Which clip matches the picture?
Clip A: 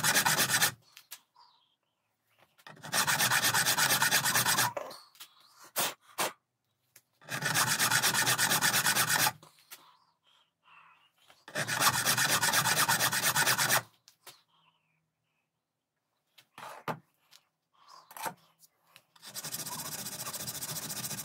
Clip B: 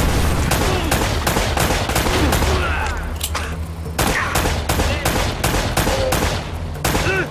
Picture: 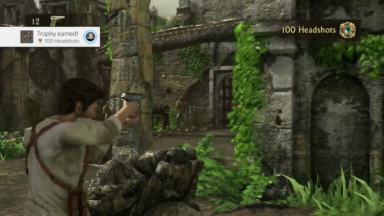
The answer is B